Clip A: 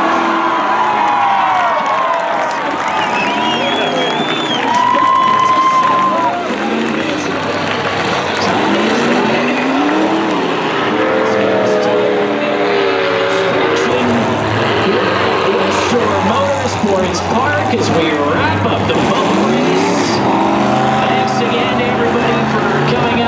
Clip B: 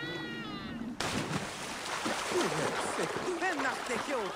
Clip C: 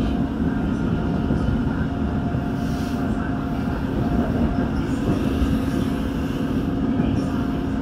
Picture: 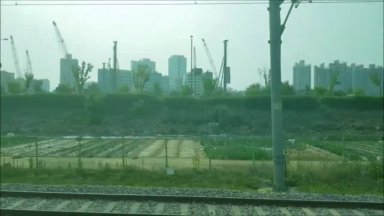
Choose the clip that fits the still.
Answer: C